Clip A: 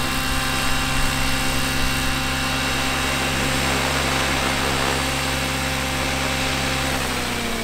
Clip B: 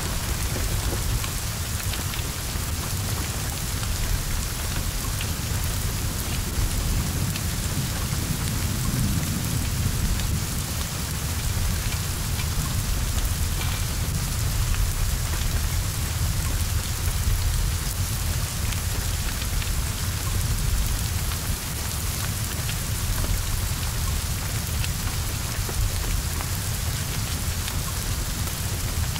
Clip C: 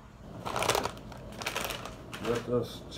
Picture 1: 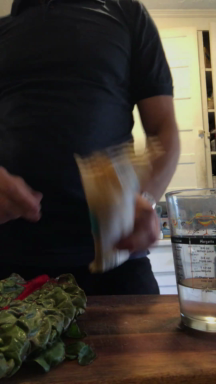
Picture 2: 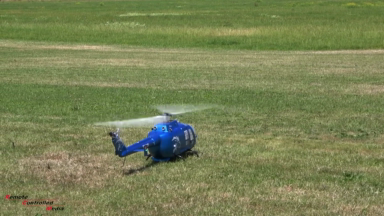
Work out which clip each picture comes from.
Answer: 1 C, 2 A